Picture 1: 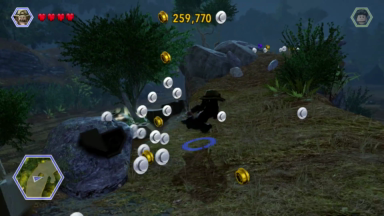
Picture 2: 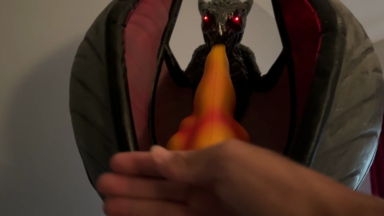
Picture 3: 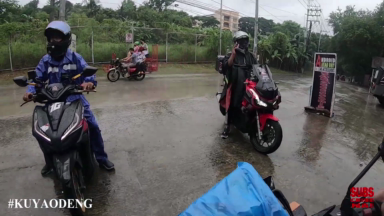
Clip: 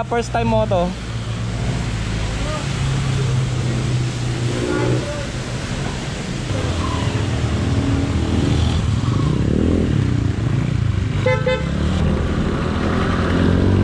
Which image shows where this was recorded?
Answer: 3